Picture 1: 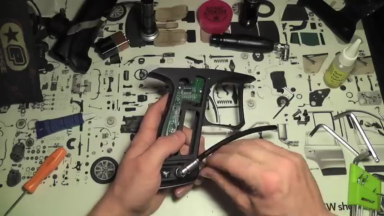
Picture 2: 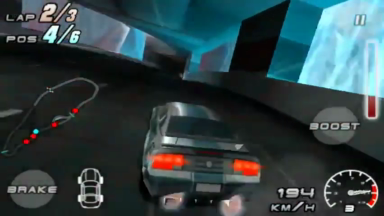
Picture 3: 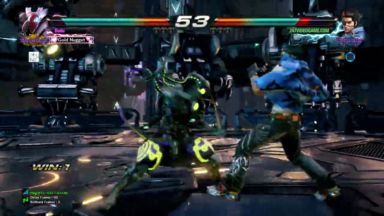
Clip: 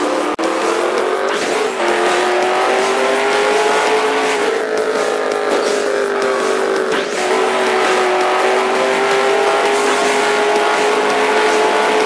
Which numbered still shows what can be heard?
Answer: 2